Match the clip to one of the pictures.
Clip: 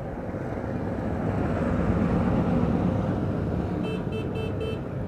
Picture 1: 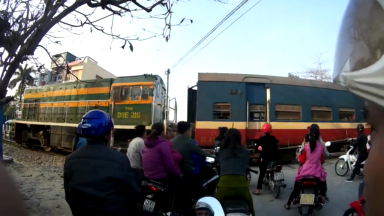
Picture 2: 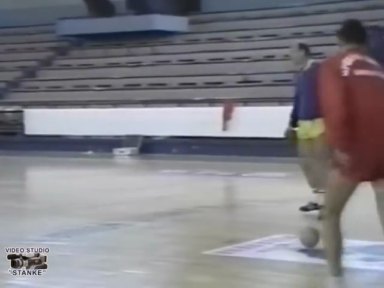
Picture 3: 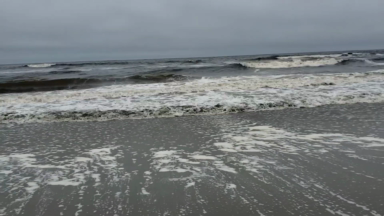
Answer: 1